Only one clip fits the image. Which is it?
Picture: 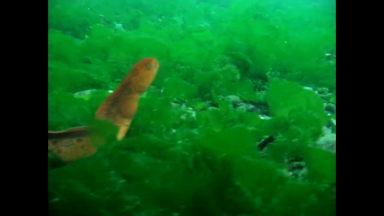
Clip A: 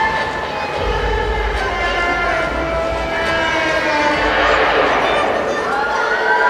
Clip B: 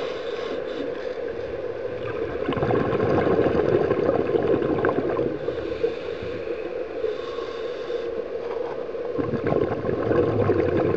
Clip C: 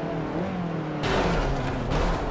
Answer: B